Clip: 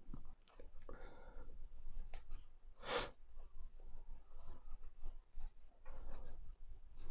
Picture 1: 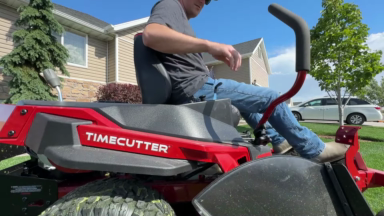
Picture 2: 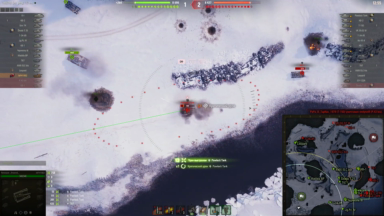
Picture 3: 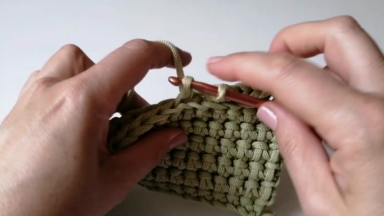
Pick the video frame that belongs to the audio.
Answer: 3